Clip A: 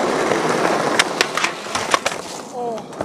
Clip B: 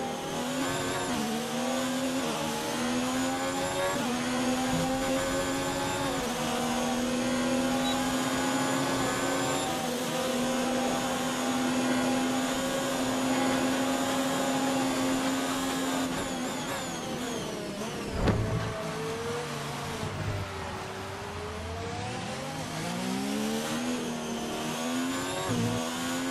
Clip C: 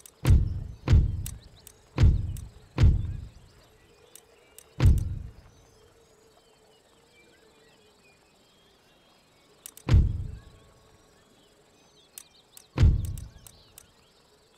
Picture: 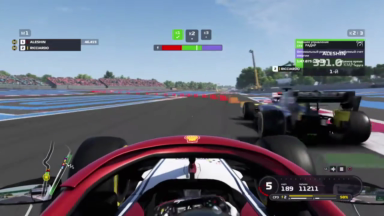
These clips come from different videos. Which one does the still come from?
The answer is B